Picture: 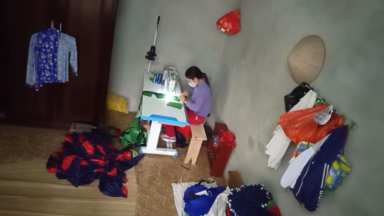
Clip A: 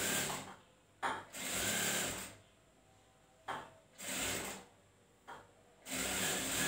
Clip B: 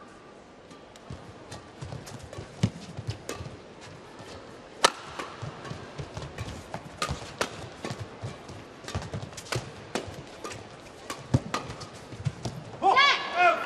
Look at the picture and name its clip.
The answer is A